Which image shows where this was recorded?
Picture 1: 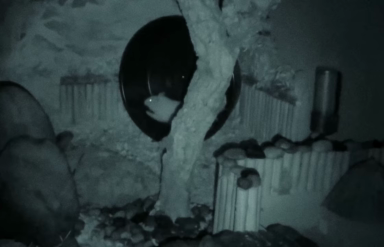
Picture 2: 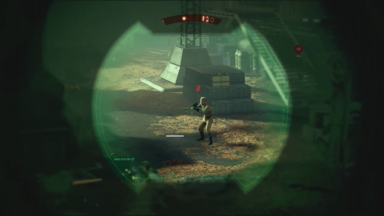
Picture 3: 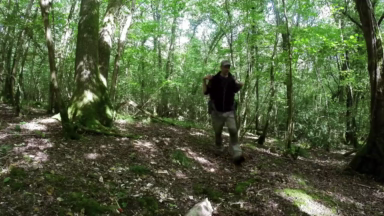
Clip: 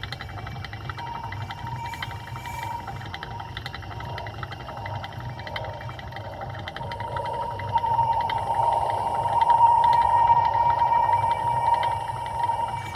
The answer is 1